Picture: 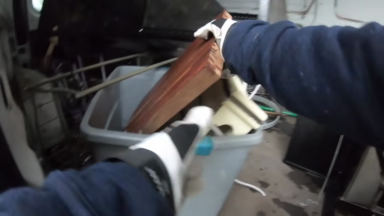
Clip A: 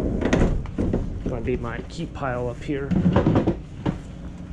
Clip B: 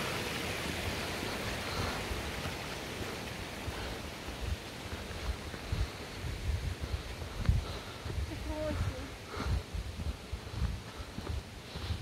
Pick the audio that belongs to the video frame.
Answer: A